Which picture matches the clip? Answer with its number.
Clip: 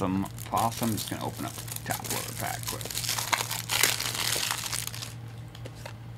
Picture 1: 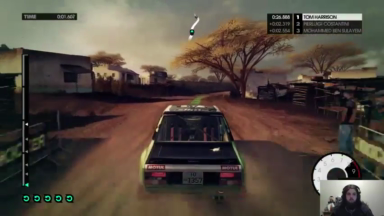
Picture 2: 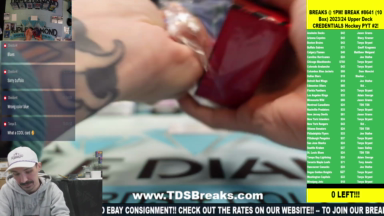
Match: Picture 2